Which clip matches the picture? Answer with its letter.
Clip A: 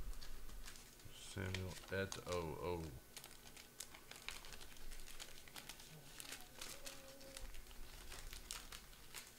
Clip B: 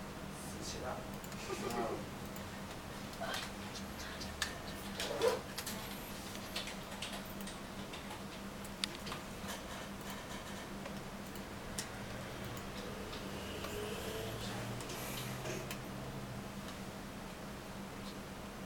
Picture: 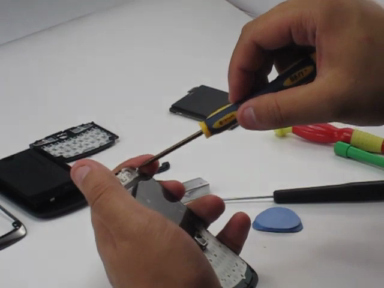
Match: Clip B